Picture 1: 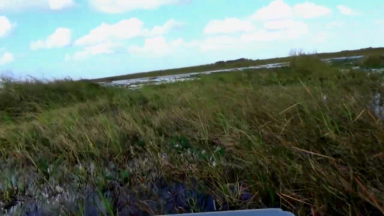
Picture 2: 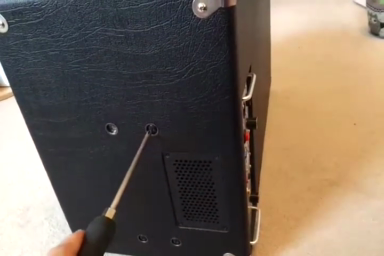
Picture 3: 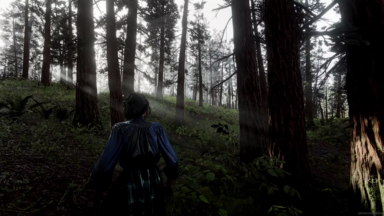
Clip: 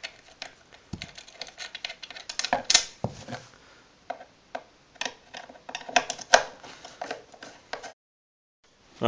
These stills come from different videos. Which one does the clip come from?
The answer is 2